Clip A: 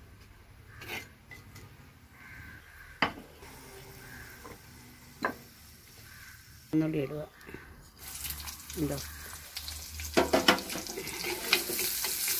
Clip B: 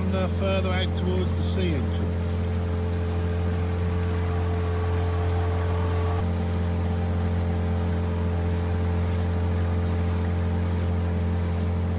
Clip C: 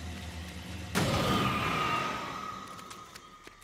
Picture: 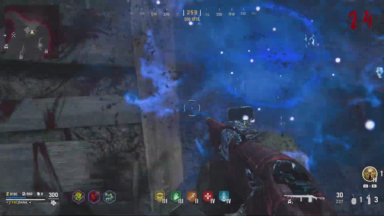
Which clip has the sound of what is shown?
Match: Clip C